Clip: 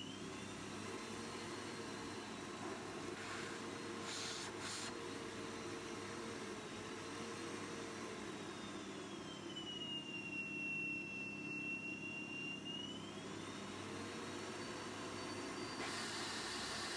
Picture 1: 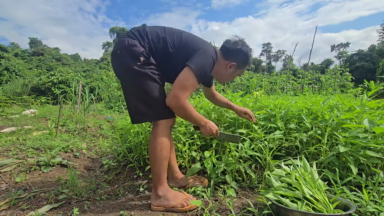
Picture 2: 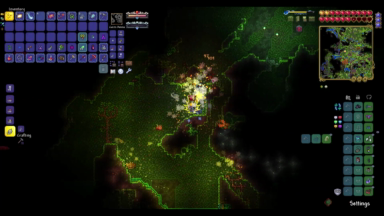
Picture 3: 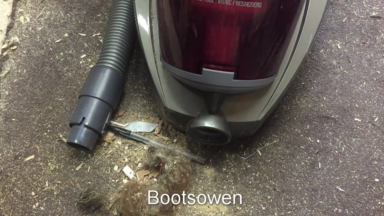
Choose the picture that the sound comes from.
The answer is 3